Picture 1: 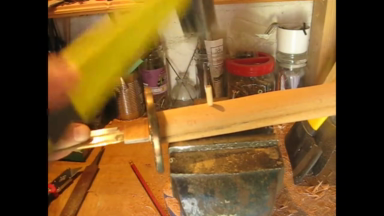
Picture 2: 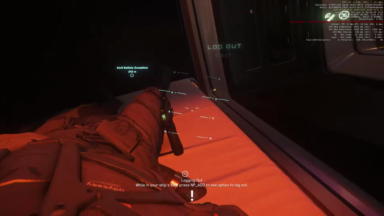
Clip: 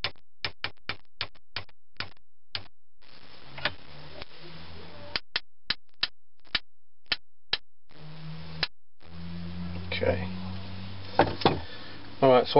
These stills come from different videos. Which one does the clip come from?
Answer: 1